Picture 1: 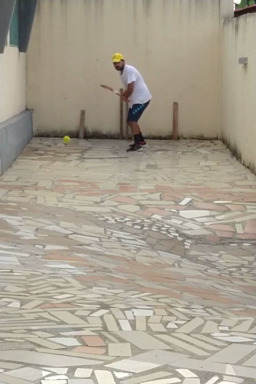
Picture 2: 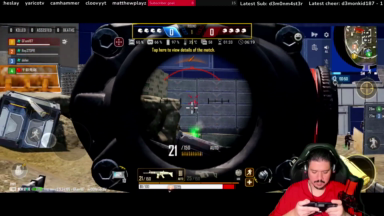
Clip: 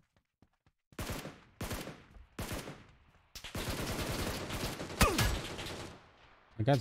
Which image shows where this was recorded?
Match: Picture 2